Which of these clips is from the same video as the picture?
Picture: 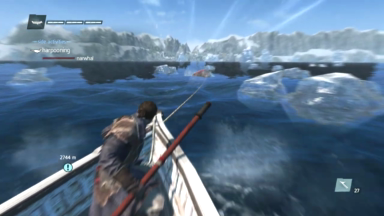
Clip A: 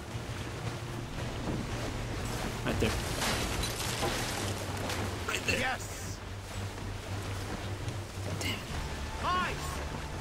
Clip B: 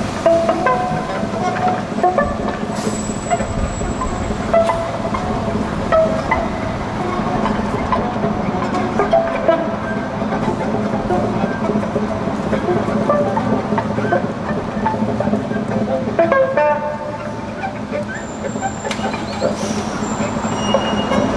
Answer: A